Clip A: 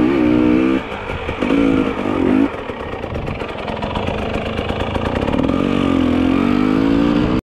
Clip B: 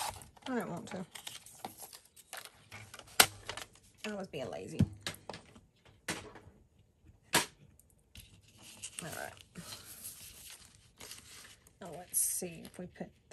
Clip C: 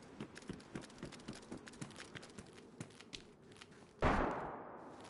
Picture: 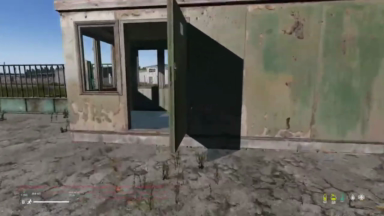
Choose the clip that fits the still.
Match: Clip C